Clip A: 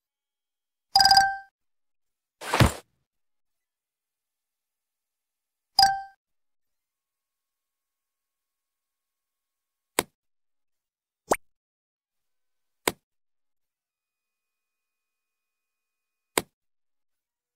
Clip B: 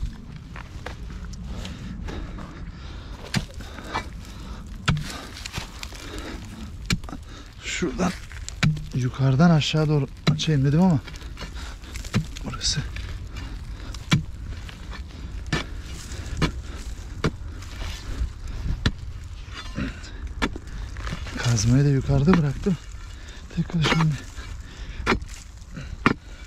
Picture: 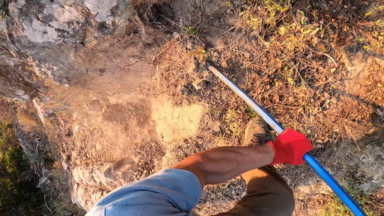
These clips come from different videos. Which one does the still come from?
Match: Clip B